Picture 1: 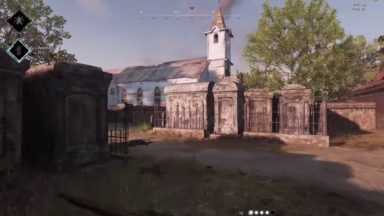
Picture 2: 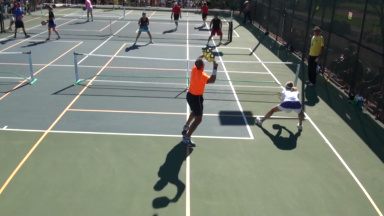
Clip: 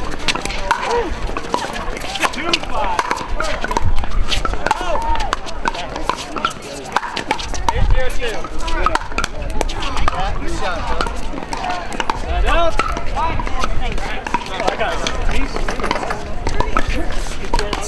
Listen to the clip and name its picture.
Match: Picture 2